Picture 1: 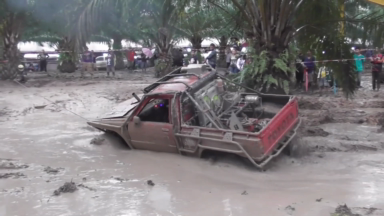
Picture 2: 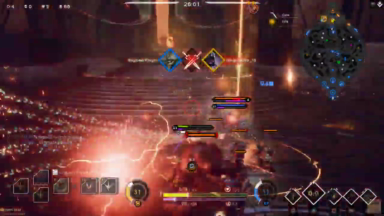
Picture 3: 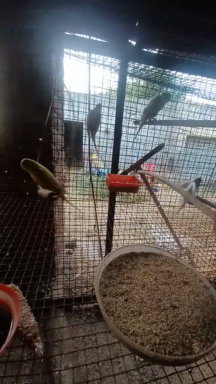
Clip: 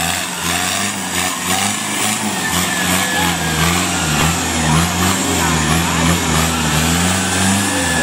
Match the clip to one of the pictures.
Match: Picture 1